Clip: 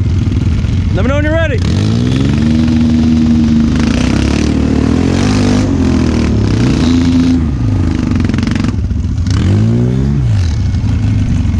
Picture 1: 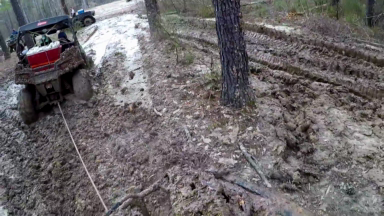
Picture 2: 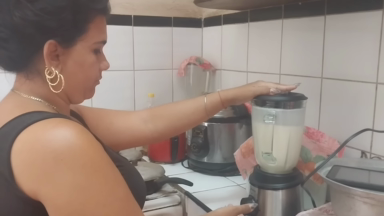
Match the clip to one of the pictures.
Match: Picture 1